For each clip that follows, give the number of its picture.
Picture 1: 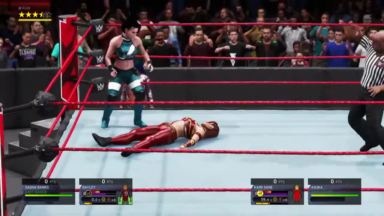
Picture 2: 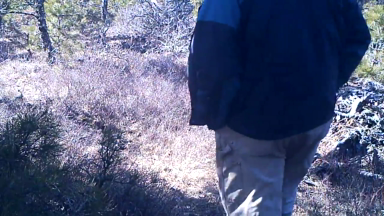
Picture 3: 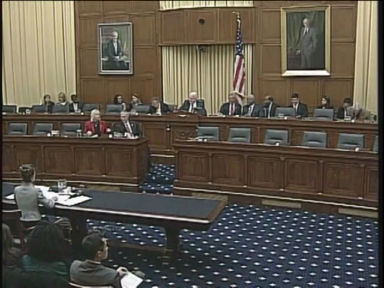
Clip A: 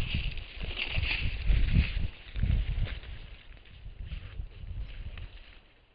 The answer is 2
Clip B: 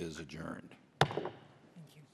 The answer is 3